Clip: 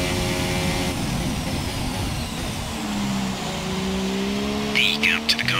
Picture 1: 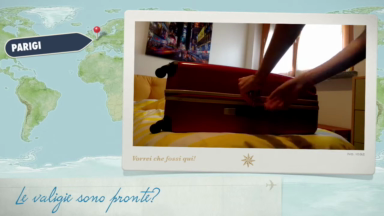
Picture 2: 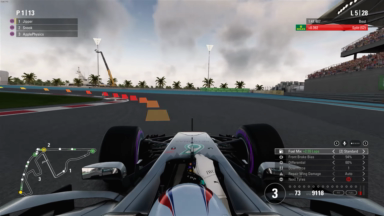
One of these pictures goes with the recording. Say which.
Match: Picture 2